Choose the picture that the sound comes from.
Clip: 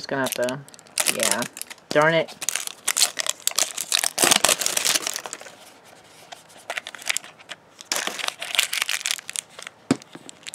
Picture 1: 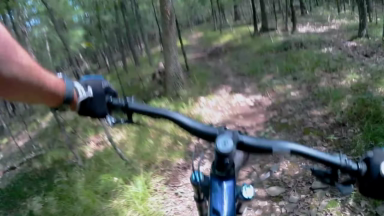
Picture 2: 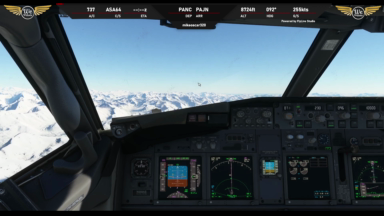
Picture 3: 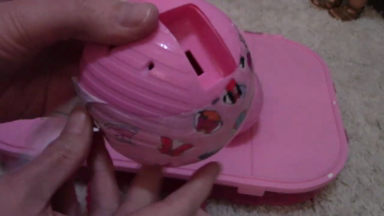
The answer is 3